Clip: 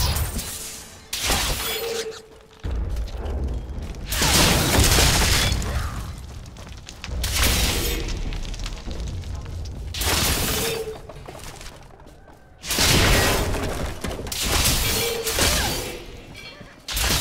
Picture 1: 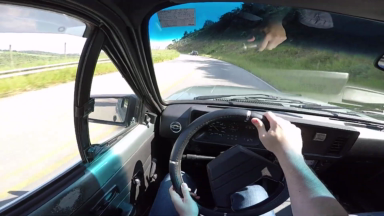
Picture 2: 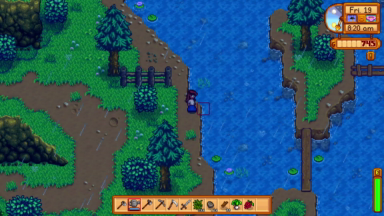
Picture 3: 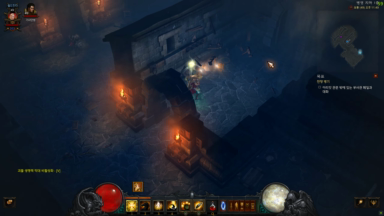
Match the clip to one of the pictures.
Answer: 3